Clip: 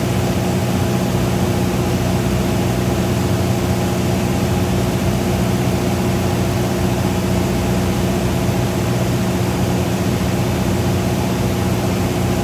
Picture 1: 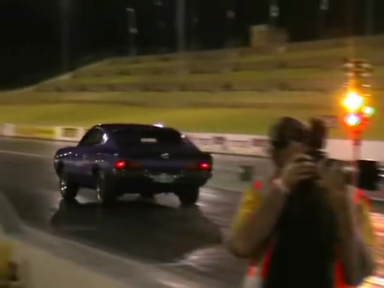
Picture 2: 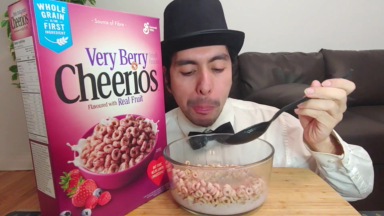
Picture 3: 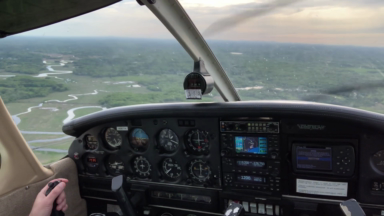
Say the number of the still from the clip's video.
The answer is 3